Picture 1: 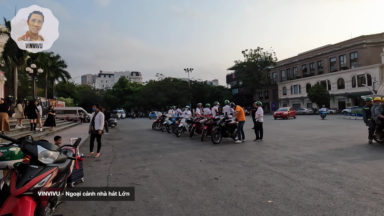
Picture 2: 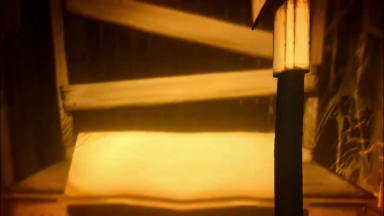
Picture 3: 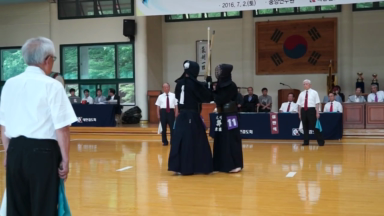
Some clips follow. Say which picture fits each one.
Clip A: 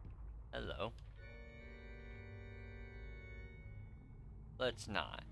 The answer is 2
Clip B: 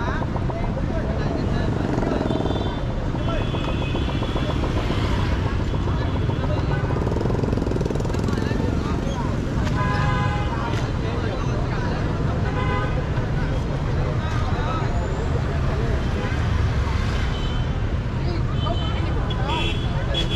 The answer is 1